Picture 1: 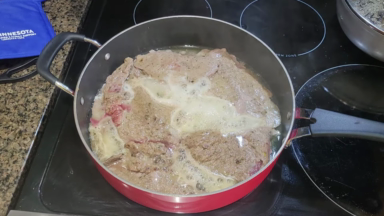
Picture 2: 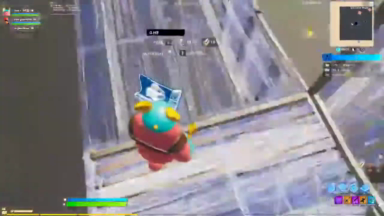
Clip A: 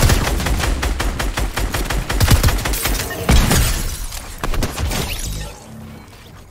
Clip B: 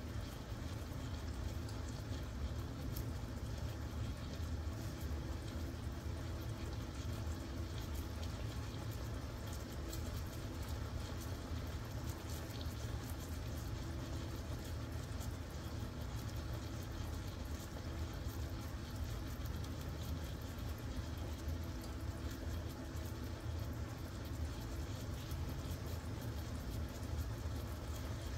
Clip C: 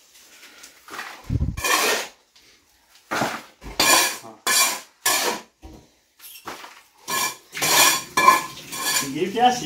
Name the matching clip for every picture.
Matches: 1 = B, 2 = A